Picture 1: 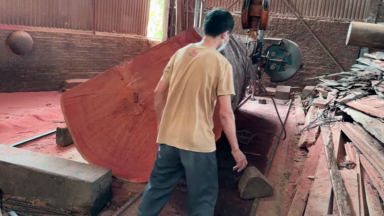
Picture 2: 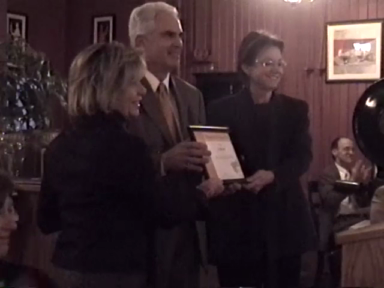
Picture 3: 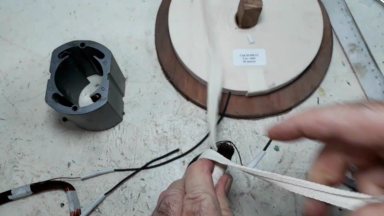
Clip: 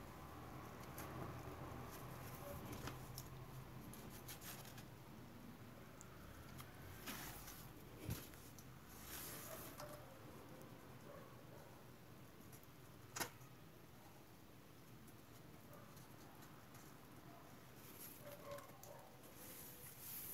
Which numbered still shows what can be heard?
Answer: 3